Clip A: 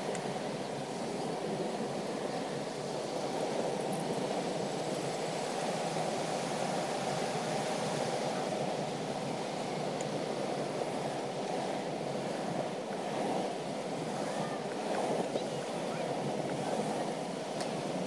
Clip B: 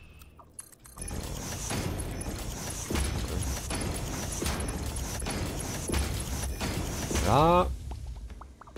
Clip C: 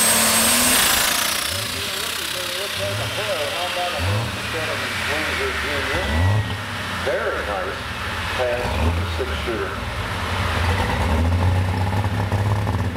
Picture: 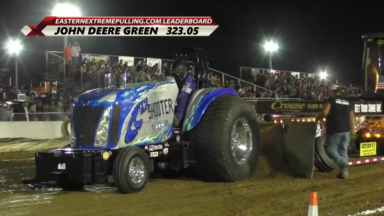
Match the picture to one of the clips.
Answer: C